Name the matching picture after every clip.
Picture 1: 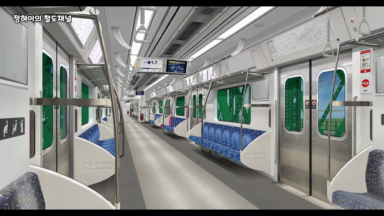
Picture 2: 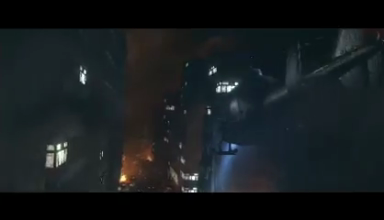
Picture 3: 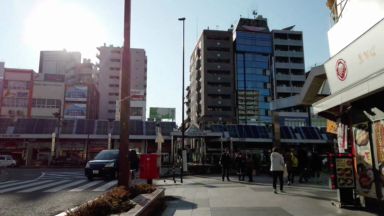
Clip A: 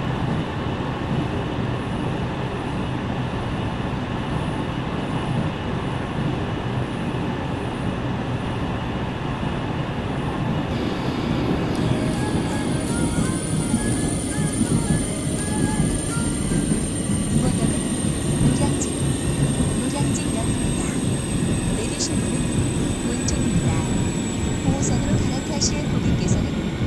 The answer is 1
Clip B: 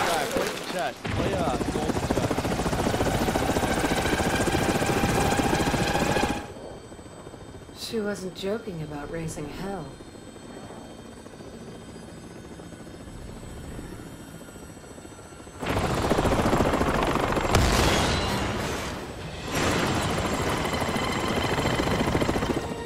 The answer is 2